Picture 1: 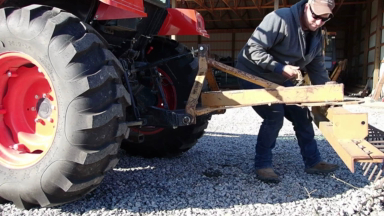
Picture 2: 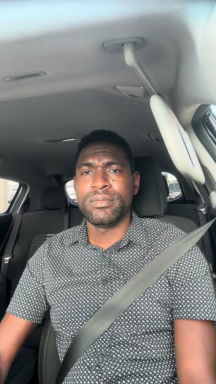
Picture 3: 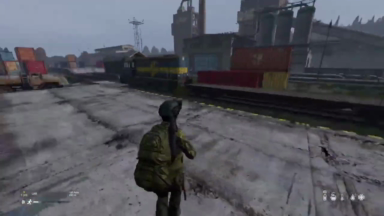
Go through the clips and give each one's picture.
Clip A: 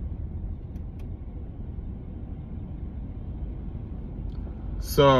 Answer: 2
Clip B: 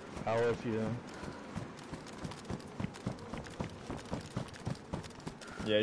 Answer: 3